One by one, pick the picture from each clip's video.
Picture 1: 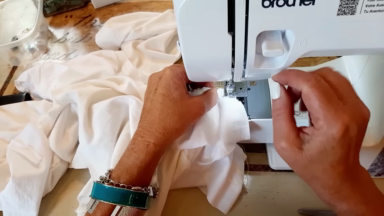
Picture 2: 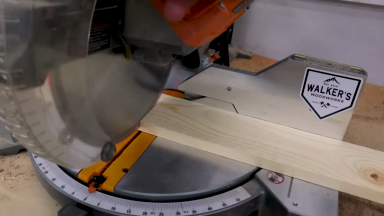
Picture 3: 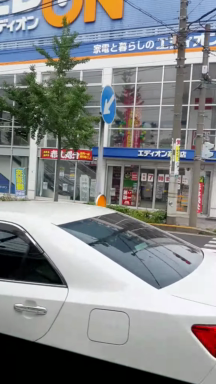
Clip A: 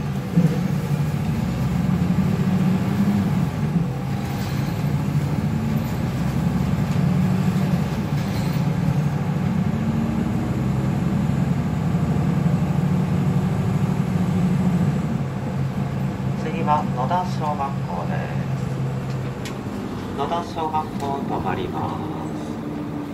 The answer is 3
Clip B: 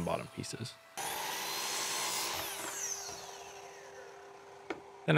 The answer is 2